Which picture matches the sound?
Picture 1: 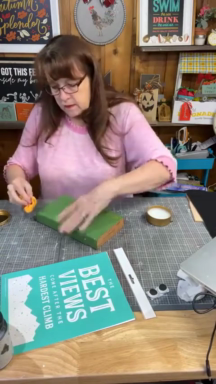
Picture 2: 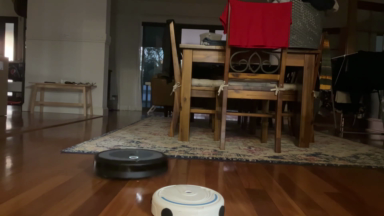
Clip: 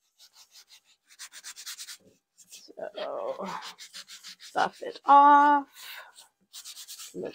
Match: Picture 1